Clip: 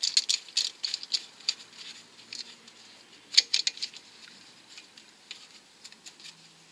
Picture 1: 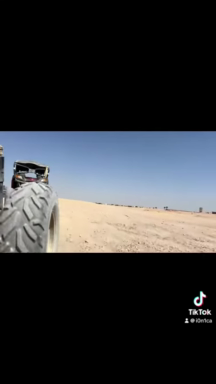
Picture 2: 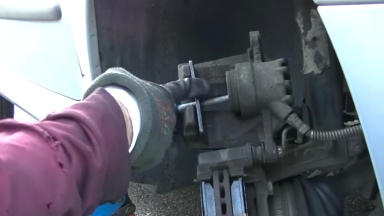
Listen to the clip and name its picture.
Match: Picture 2